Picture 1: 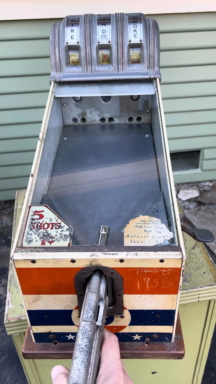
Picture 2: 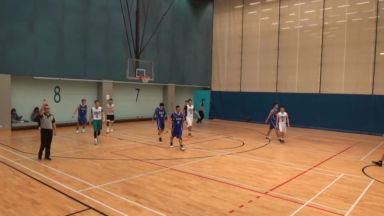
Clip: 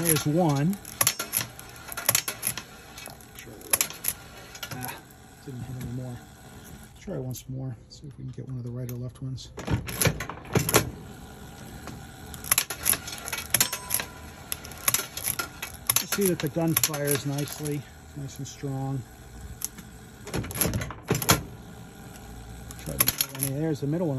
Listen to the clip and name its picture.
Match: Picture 1